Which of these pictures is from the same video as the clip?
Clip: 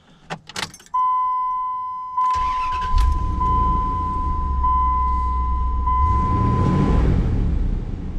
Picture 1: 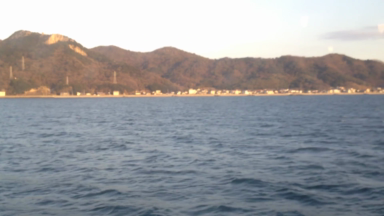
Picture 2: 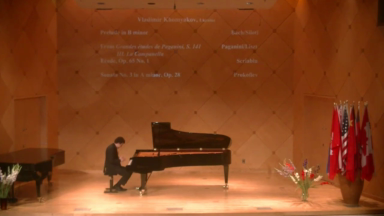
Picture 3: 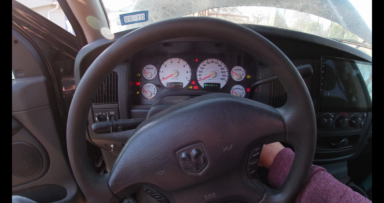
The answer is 3